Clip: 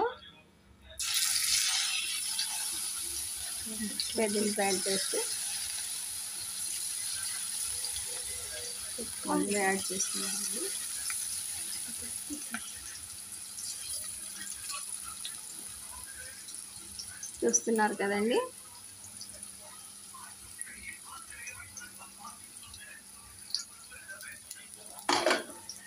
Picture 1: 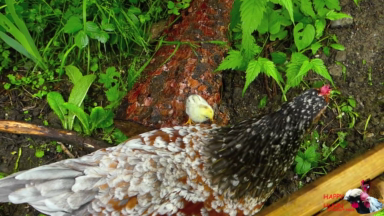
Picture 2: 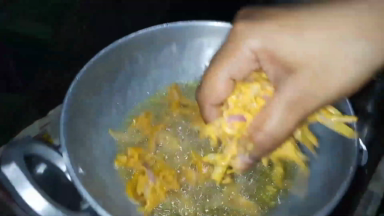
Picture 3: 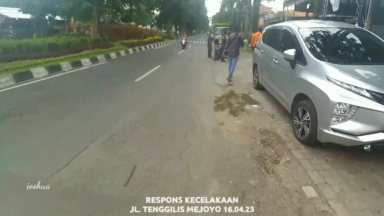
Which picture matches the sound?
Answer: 2